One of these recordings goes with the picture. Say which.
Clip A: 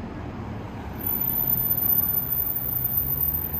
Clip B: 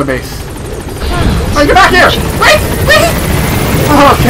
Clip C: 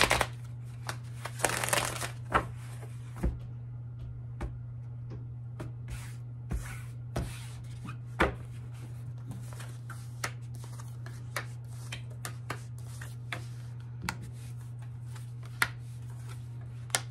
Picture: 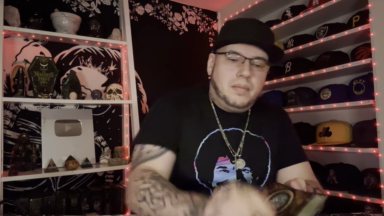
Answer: C